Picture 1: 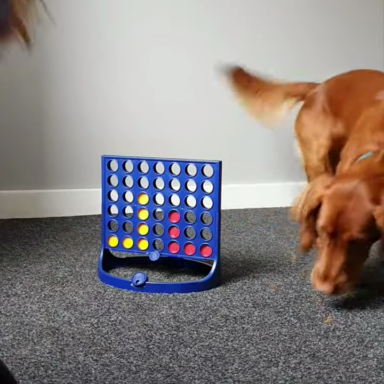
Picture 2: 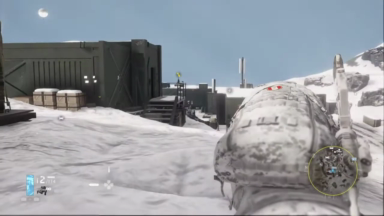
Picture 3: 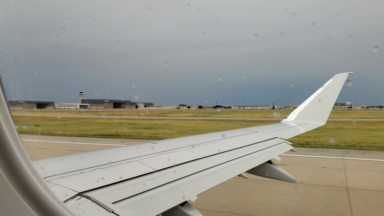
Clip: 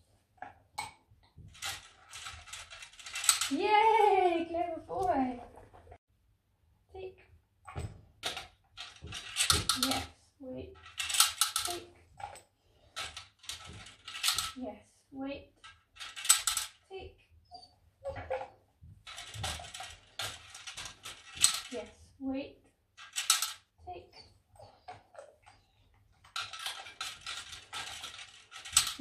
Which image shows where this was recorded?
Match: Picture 1